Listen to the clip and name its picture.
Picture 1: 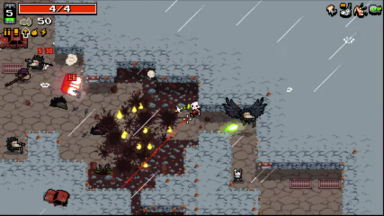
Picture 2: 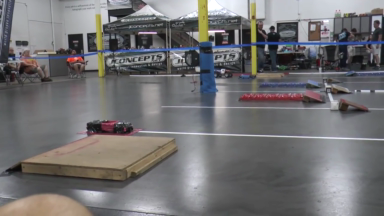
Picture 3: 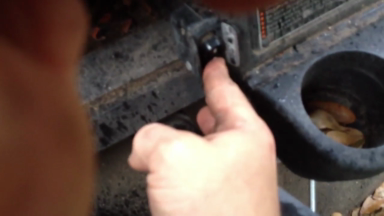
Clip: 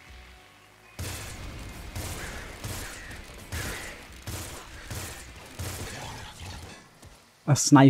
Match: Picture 1